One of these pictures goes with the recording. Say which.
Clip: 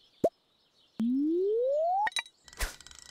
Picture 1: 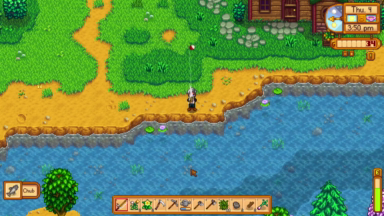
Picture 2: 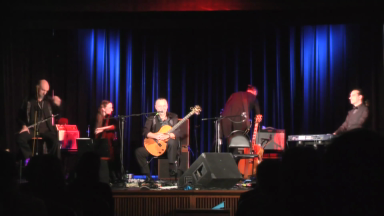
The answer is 1